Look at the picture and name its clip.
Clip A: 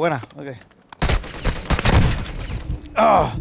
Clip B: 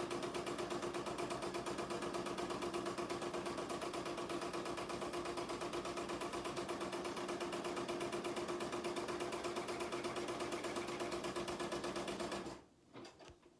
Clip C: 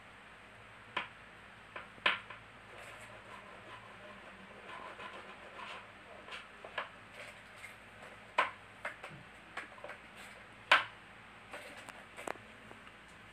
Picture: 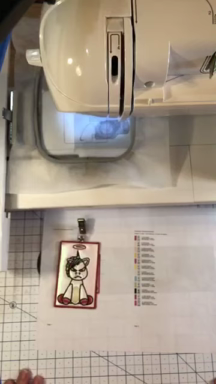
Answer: B